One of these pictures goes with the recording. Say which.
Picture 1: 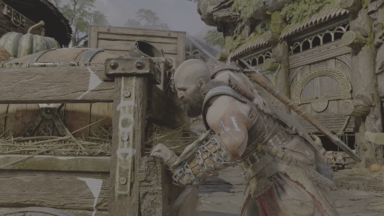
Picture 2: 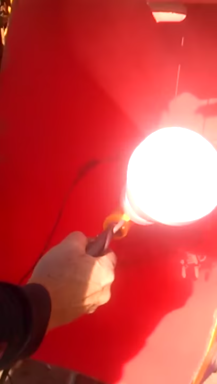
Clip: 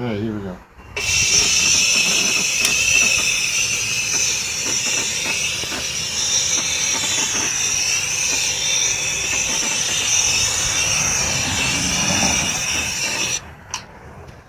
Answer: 2